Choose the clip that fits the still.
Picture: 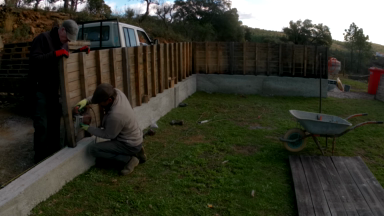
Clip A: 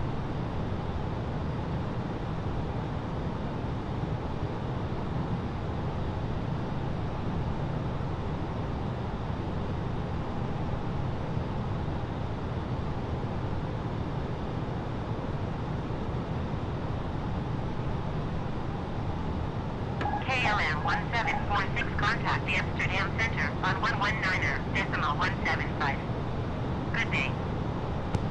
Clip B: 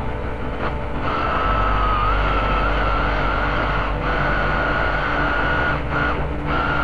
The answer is B